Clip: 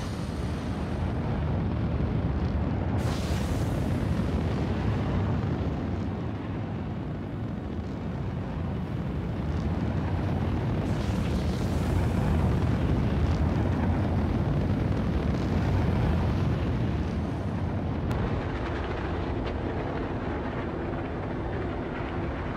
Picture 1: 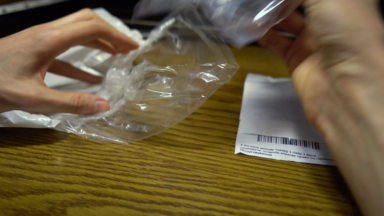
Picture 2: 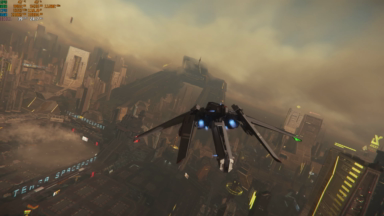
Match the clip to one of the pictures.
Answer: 2